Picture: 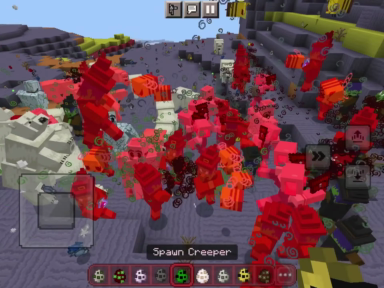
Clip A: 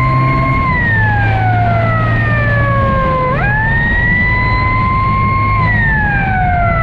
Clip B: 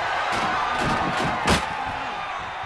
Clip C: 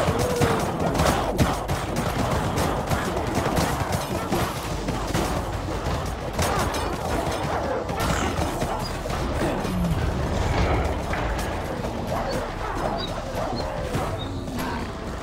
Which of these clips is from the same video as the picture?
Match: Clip C